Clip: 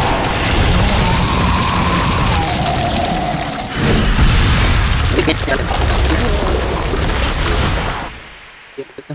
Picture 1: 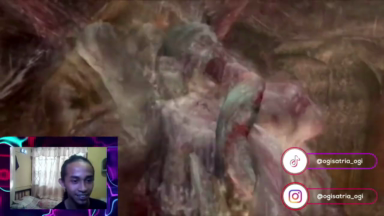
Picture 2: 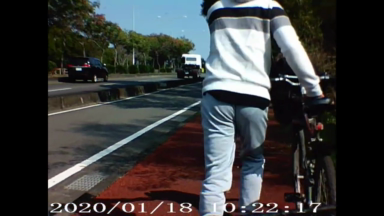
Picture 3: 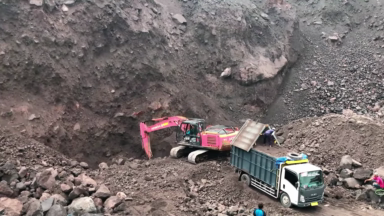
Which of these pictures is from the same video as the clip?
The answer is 1